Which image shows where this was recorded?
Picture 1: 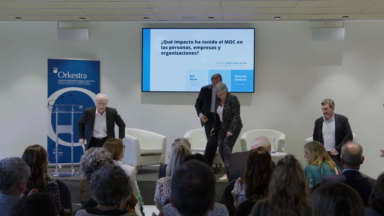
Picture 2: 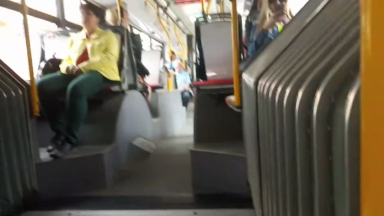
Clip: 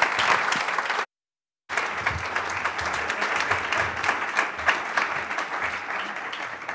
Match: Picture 1